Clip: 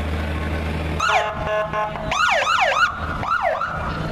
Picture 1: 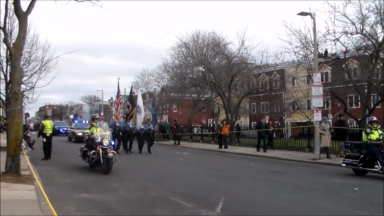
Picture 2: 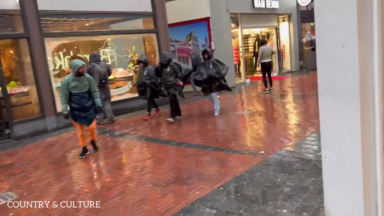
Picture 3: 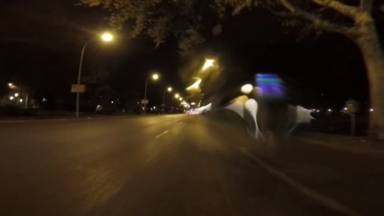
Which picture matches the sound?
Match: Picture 1